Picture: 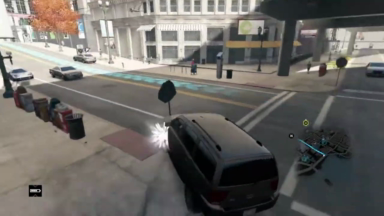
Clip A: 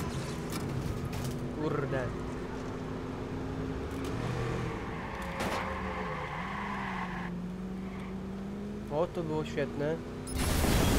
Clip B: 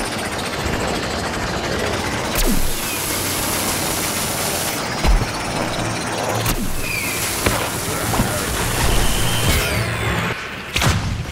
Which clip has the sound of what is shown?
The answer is A